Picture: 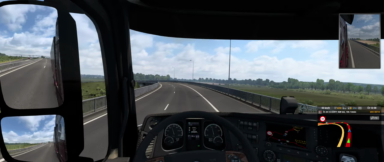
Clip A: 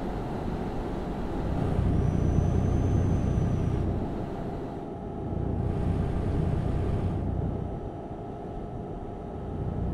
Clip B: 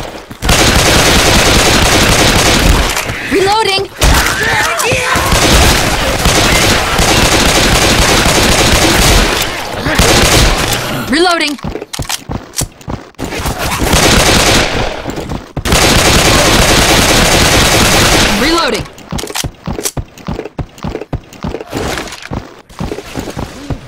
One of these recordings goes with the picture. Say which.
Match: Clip A